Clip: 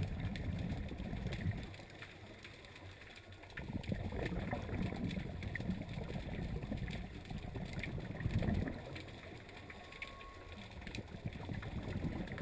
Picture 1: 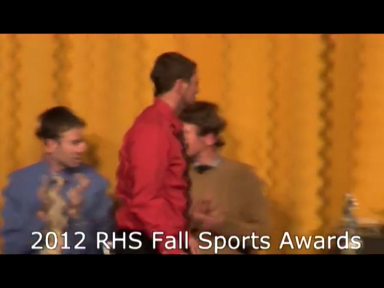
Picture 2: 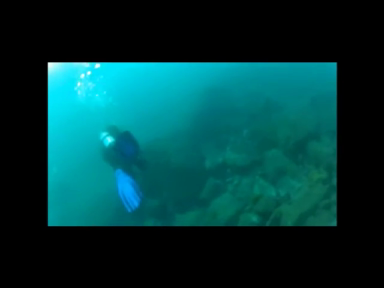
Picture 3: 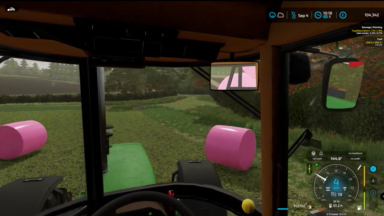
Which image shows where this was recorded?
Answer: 2